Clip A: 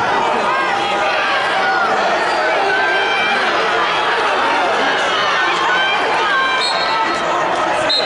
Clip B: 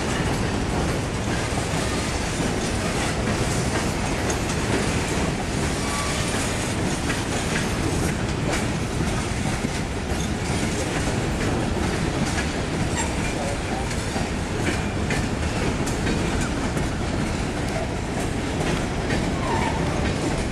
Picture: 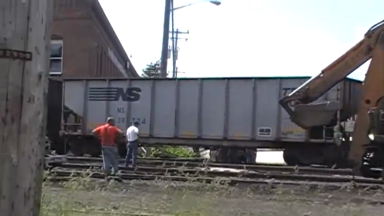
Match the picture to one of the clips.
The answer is B